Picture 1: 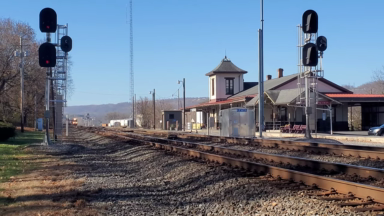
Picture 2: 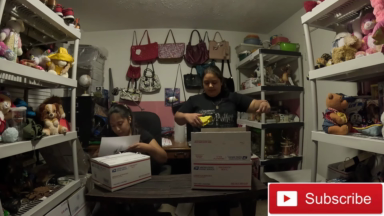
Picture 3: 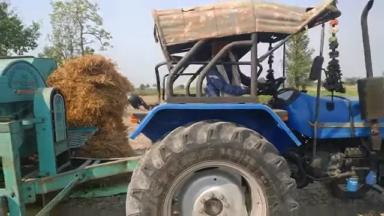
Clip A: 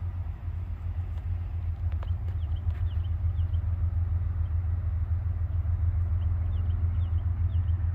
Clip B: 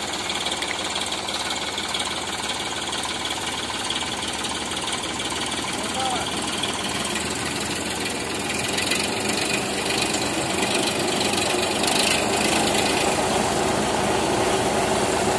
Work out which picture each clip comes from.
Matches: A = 1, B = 3